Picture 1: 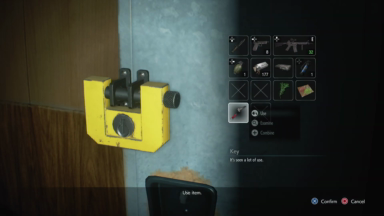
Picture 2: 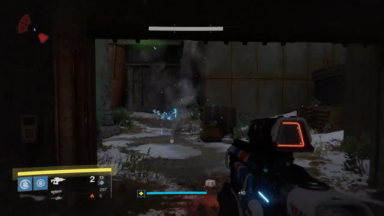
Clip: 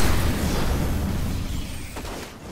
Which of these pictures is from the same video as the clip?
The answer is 2